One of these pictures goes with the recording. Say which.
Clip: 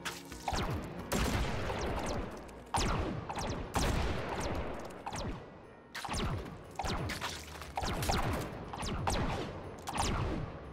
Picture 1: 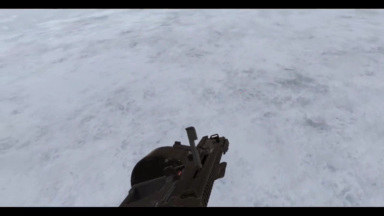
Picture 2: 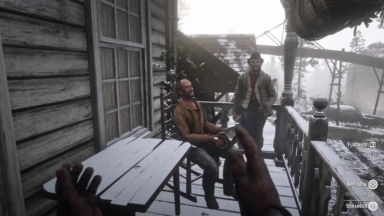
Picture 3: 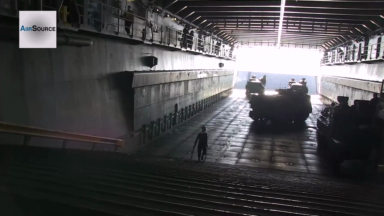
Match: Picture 1